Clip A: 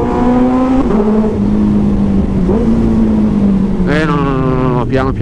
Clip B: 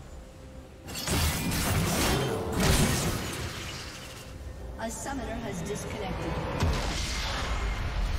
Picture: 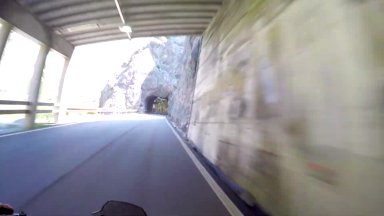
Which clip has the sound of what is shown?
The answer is A